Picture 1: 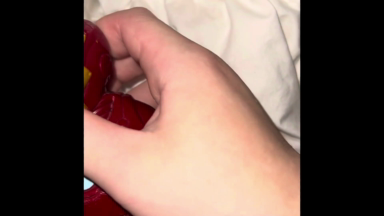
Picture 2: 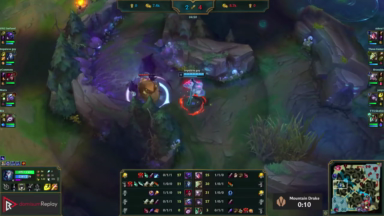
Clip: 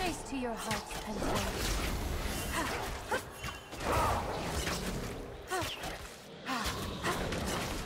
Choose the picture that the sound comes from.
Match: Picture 2